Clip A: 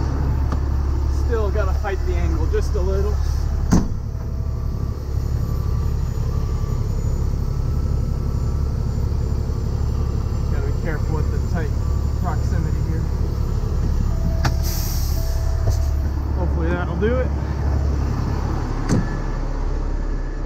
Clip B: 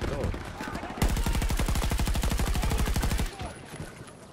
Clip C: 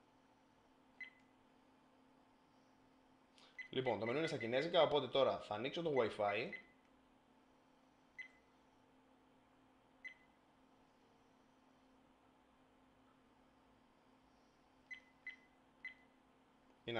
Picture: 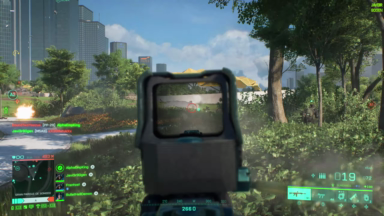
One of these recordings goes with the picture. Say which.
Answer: B